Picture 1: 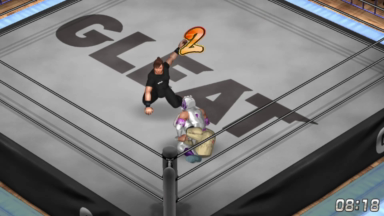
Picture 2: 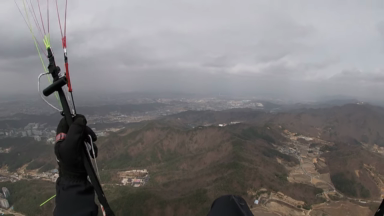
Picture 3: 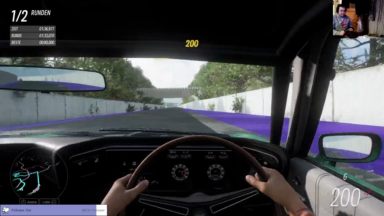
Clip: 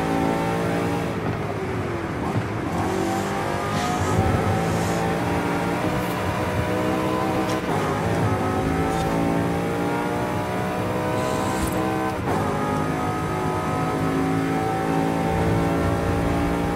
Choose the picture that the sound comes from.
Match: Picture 3